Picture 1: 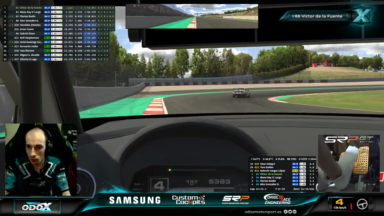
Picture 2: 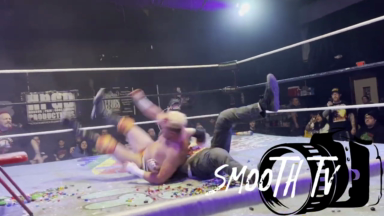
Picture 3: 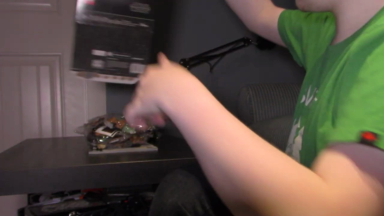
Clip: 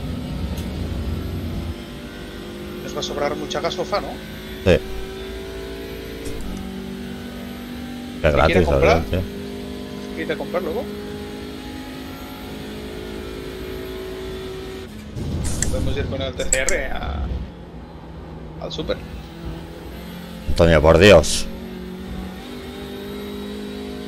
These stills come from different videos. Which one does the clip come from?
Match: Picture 1